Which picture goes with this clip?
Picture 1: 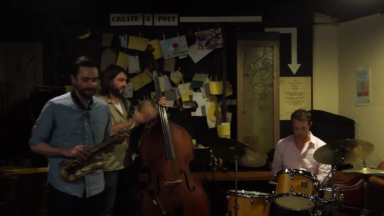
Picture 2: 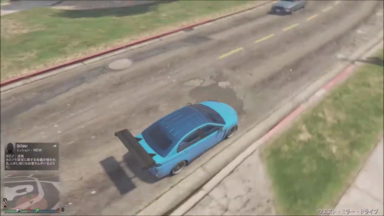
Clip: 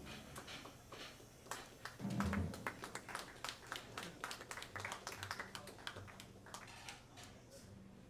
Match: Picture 1